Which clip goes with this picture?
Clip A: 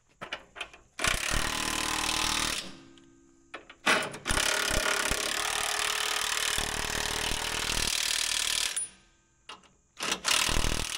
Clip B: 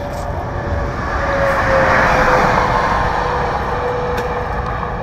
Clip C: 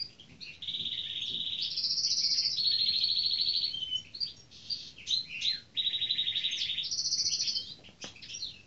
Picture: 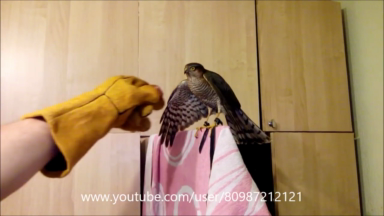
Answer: C